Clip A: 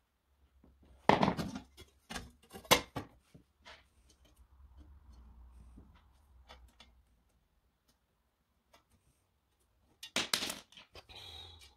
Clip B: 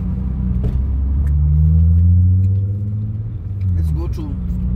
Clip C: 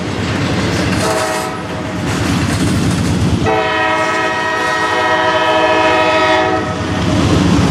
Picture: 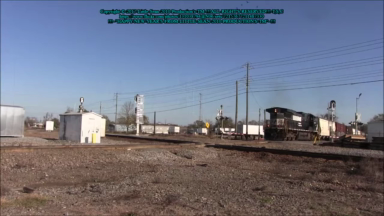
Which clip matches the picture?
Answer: C